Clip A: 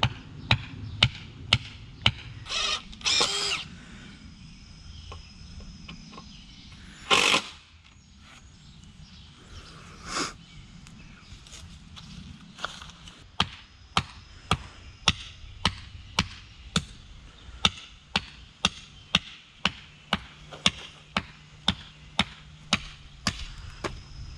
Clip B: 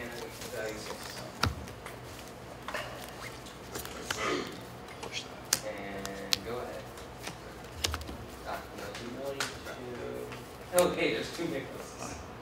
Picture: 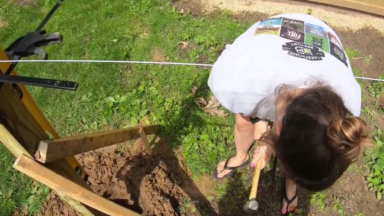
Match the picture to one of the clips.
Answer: A